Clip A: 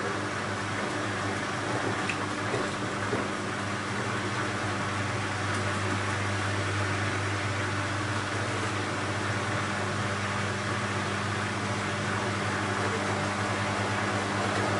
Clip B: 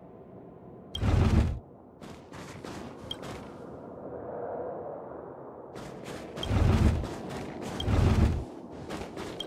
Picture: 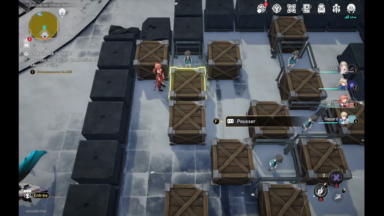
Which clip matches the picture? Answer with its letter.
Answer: B